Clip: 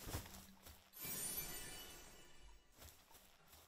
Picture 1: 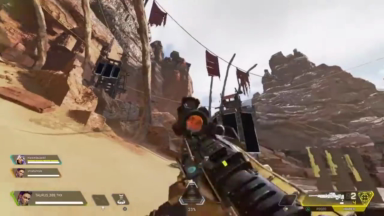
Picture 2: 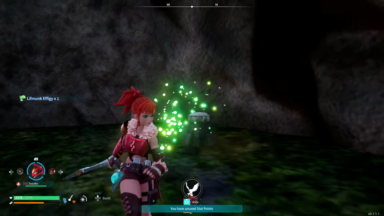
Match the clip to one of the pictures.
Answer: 2